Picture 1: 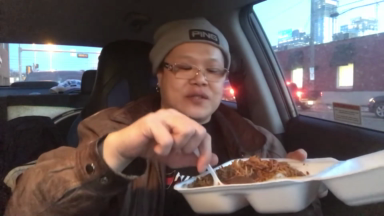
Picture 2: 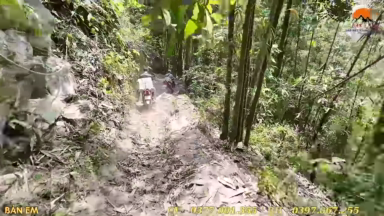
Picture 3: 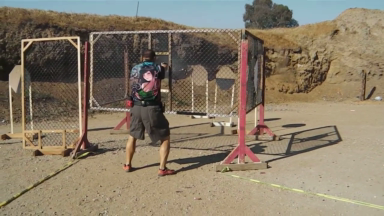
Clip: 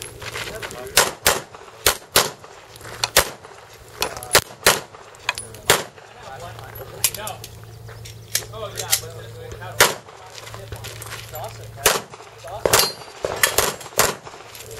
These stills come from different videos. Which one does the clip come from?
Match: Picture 3